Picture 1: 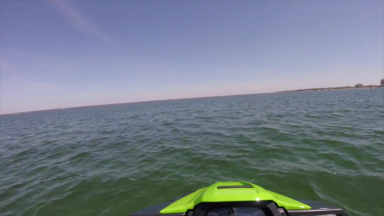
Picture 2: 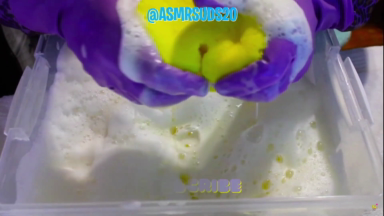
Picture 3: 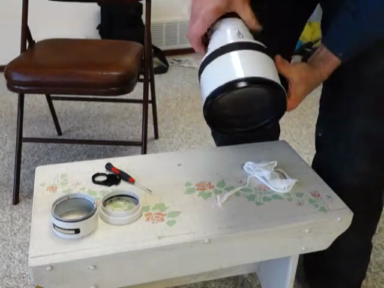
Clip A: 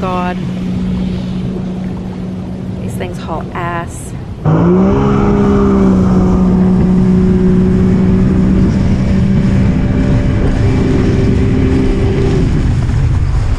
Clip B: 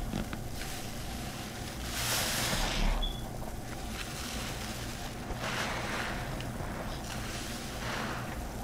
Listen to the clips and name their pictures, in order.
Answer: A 1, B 2